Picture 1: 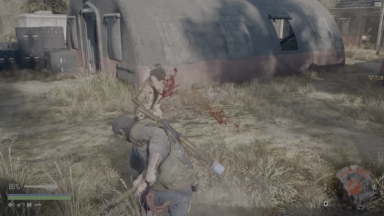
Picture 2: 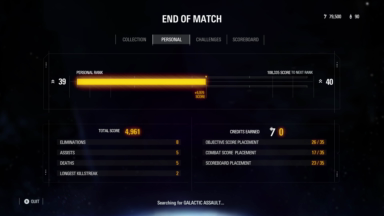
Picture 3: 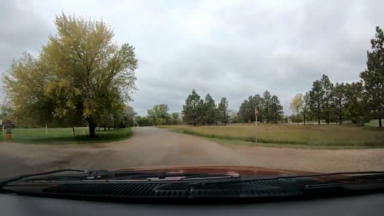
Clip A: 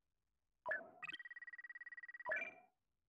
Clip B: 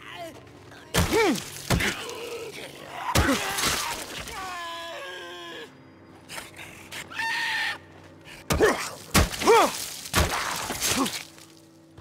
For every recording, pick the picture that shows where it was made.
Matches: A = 2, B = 1